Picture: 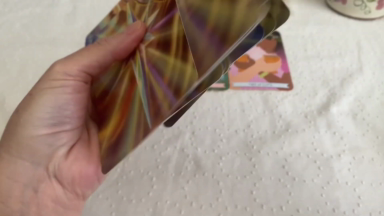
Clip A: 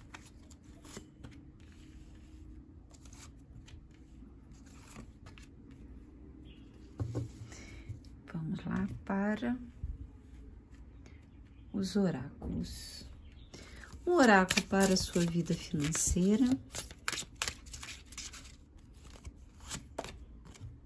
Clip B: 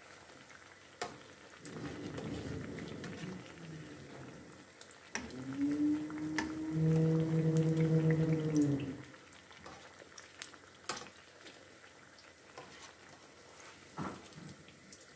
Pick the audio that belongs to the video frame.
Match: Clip A